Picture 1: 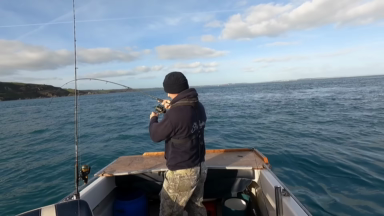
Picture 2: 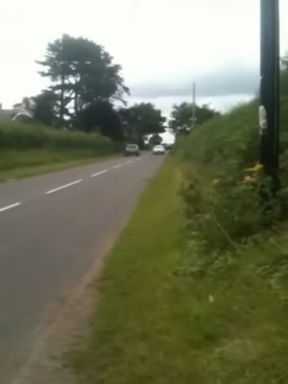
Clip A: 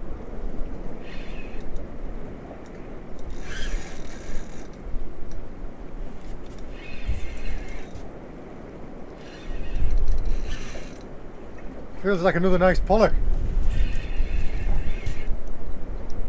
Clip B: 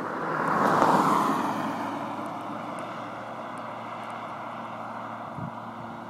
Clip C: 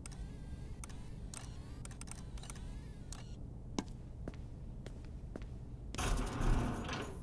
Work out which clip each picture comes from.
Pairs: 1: A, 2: B